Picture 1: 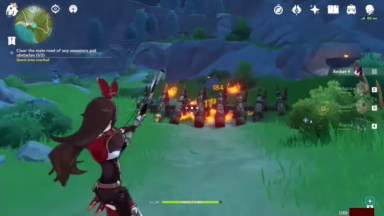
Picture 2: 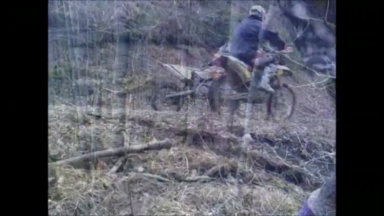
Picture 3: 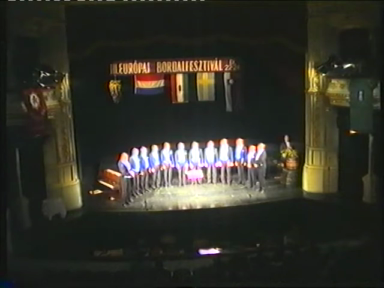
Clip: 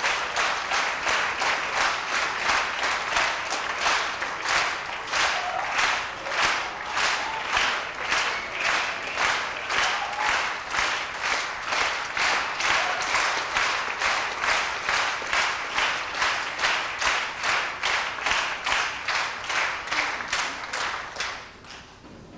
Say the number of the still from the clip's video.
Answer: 3